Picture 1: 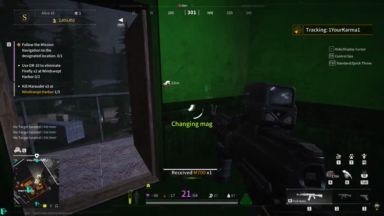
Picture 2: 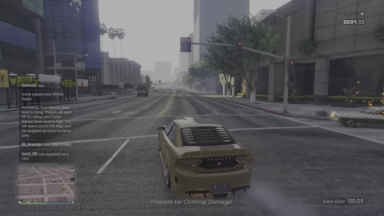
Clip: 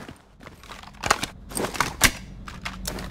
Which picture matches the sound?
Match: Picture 1